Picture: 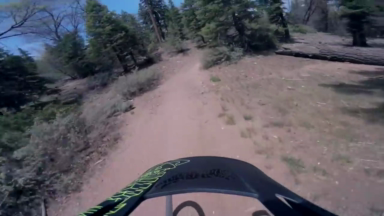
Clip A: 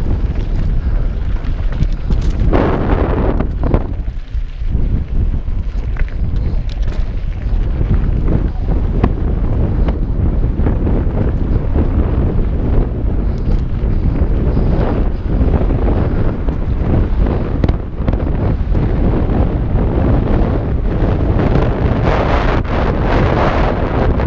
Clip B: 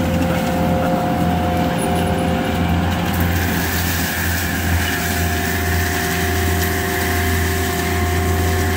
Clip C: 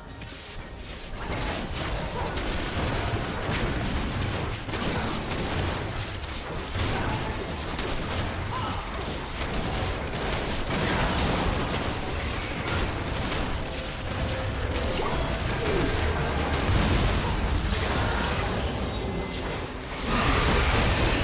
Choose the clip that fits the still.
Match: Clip A